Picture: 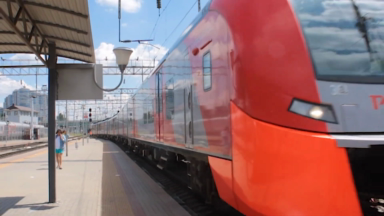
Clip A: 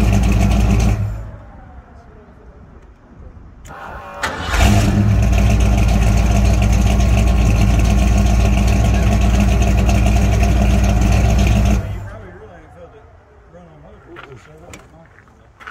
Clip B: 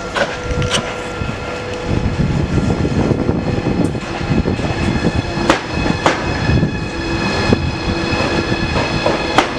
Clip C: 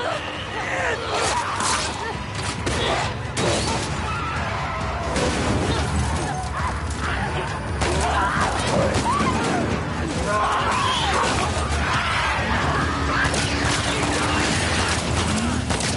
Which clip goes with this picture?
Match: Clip B